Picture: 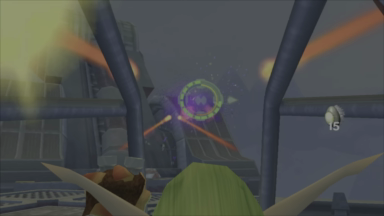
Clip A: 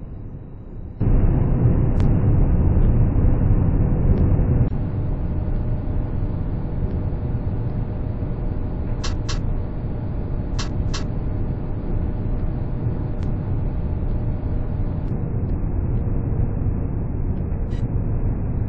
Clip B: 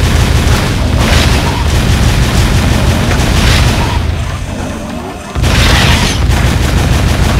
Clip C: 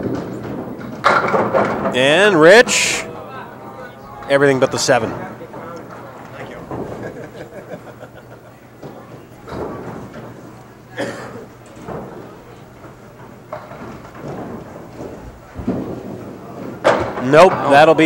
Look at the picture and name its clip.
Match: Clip B